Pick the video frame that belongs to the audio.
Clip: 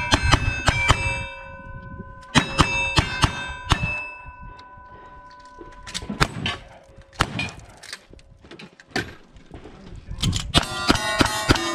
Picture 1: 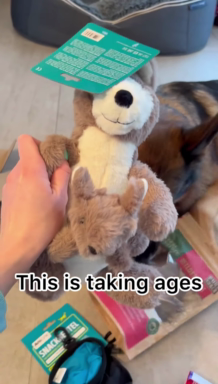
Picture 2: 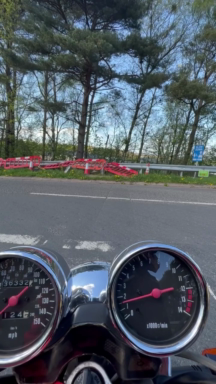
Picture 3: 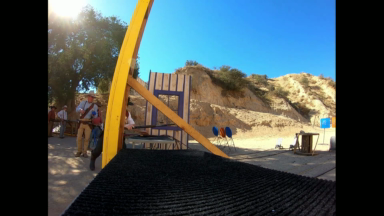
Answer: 3